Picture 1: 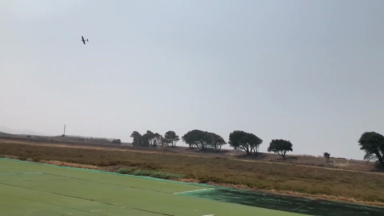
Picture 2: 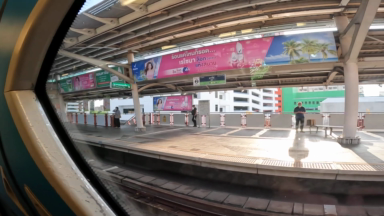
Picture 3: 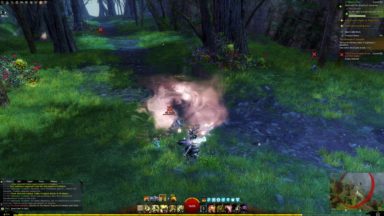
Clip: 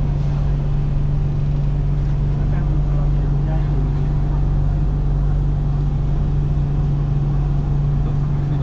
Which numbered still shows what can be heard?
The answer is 2